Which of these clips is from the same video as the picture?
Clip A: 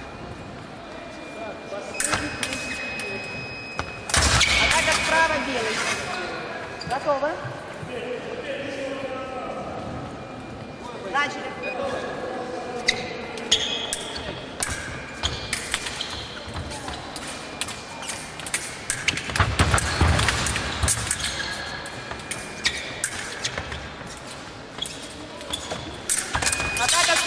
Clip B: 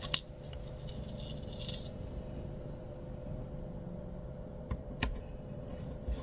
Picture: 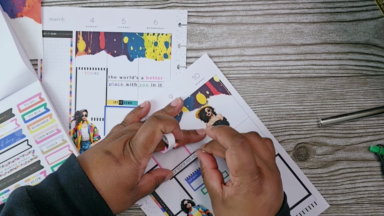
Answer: B